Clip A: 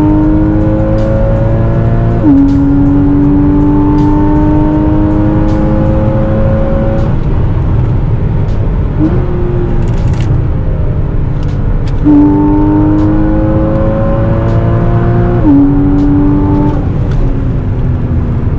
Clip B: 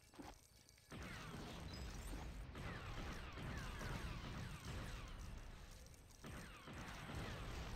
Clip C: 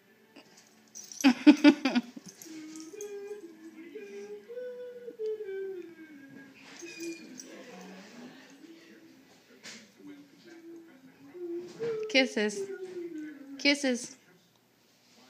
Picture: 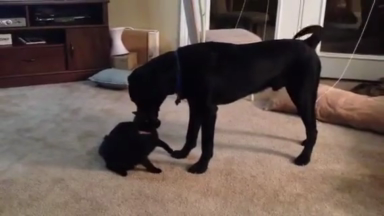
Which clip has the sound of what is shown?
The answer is C